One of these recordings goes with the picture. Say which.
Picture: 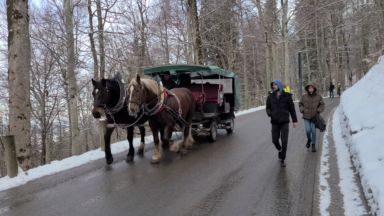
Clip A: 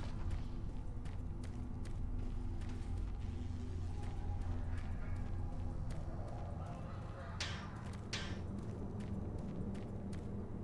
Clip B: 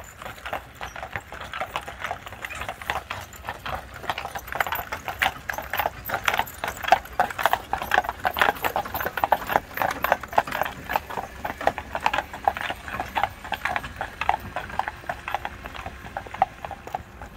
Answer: B